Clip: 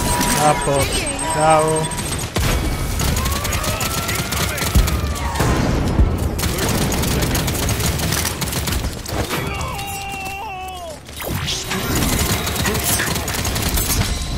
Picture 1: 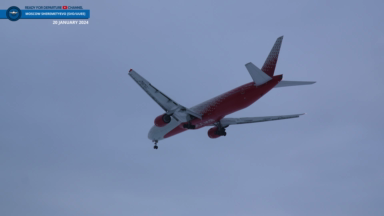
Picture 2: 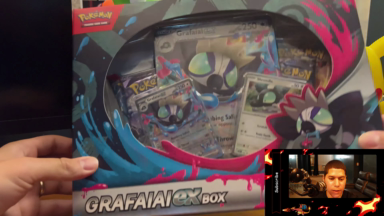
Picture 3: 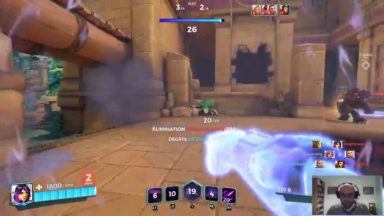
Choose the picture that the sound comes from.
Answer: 3